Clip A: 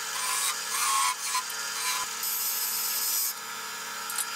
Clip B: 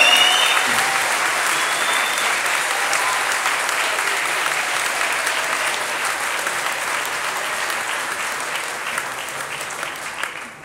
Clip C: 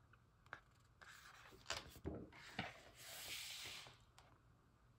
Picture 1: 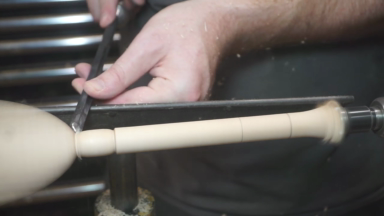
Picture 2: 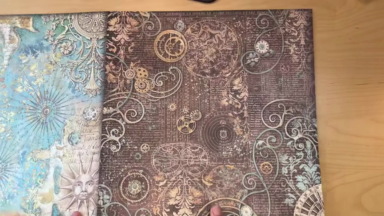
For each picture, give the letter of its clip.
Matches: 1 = A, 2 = C